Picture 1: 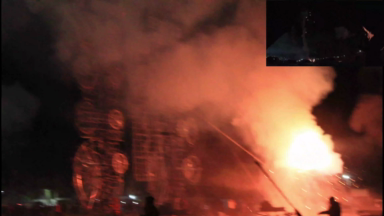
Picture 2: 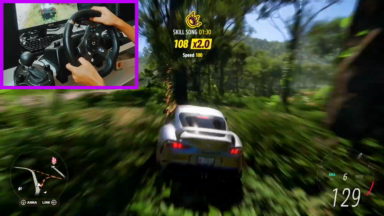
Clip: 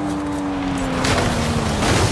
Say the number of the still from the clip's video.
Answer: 2